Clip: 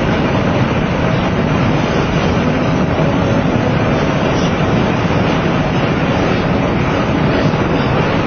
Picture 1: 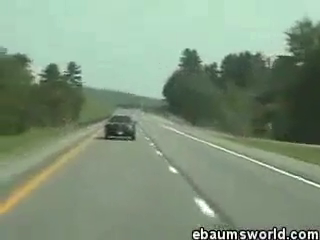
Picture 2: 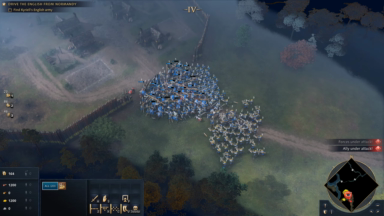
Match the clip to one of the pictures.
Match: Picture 1